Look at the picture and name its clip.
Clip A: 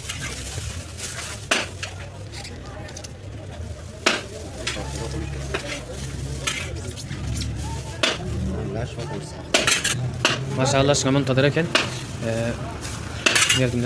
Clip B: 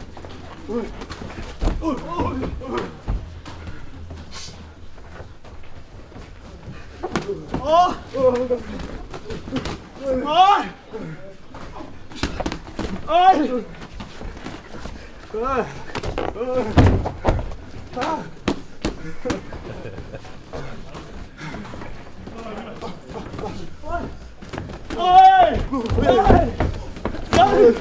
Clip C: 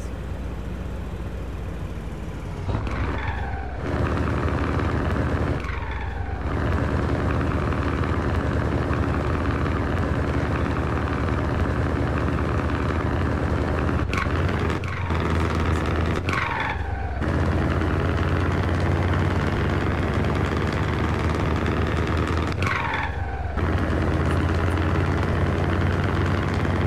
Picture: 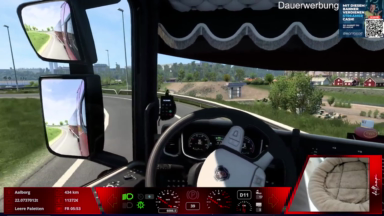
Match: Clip C